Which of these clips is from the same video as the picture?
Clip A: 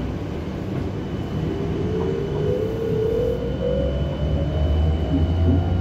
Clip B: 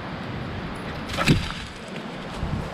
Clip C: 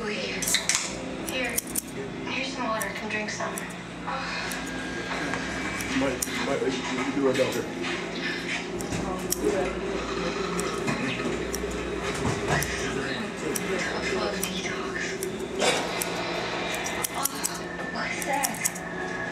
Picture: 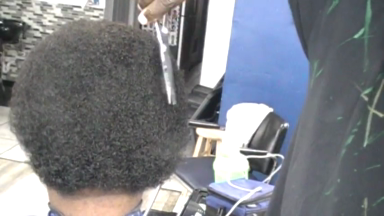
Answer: C